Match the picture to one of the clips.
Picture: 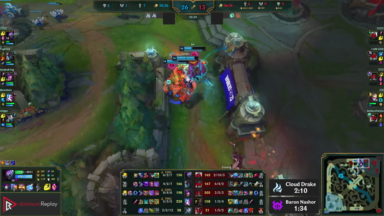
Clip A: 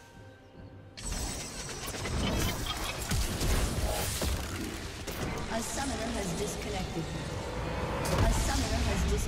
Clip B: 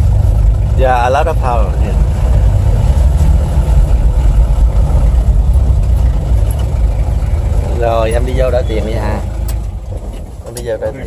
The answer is A